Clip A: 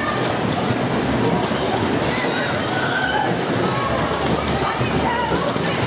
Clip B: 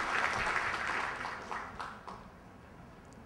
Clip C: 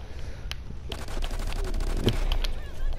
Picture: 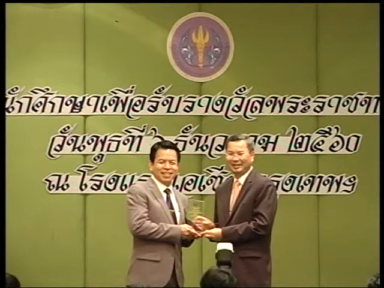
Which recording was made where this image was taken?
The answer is B